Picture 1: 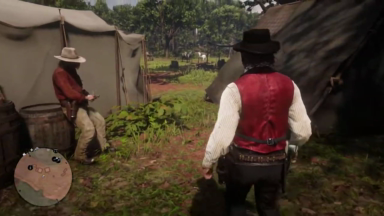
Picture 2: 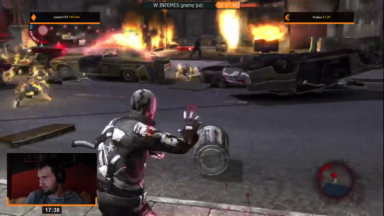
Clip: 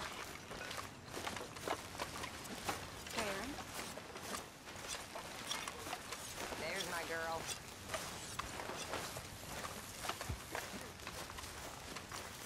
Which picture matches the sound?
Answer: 1